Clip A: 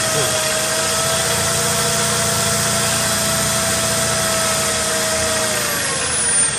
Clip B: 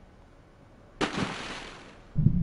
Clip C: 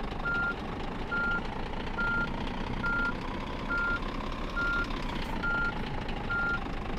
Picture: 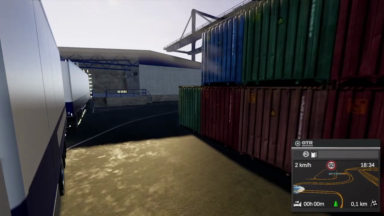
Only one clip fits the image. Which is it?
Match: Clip C